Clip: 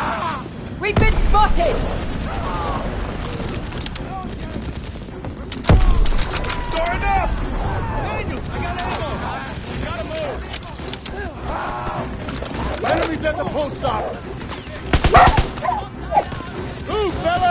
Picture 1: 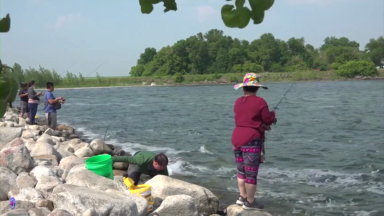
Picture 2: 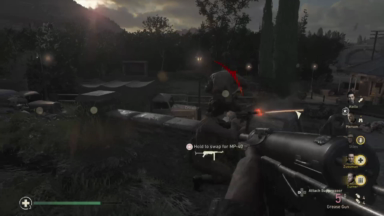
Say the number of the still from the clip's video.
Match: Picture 2